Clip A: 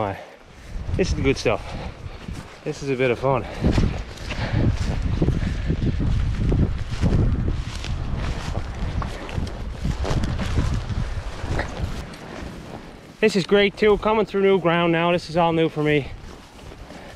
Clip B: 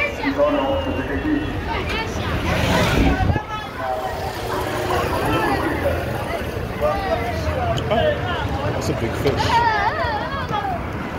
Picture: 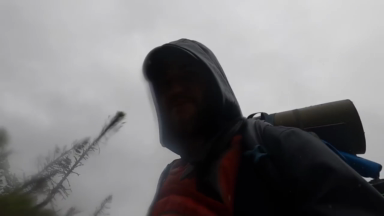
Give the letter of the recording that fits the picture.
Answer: A